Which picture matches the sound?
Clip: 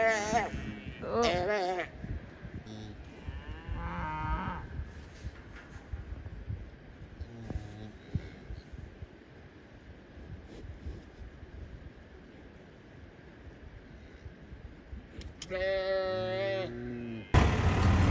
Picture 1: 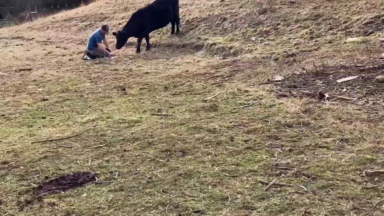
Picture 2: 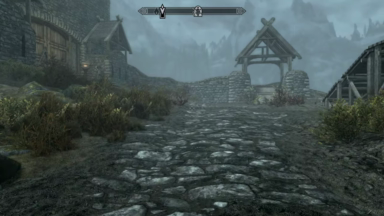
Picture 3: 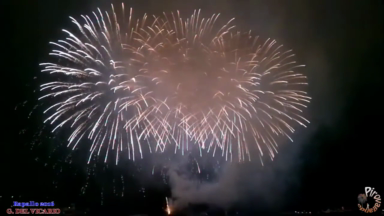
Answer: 1